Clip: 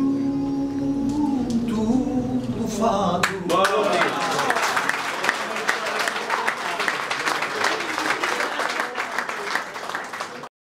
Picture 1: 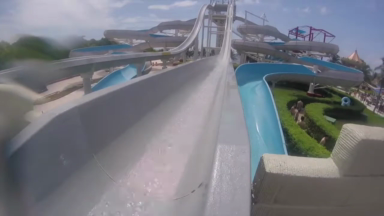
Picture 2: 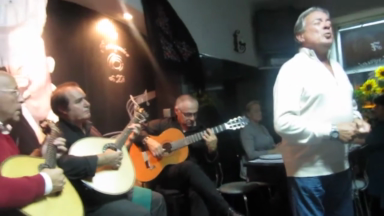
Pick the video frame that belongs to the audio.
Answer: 2